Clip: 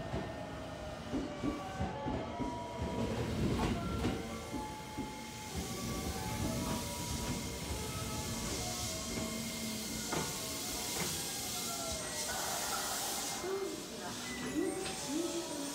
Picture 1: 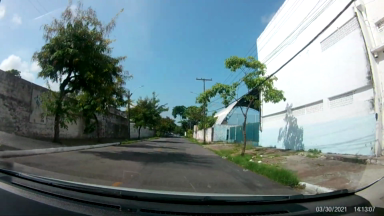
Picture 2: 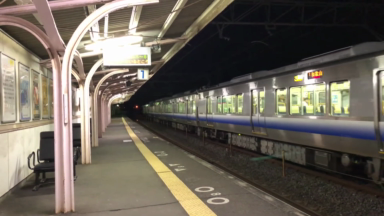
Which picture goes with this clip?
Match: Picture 2